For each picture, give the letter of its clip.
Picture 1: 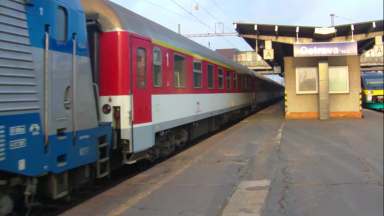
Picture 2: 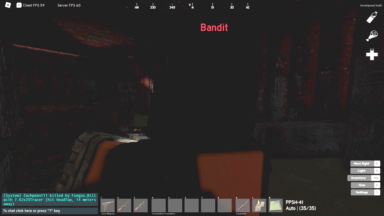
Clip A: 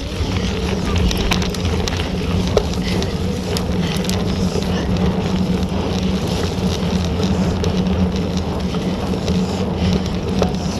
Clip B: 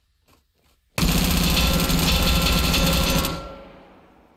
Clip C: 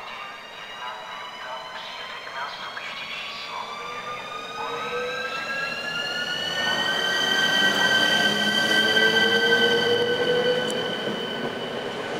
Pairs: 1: C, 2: B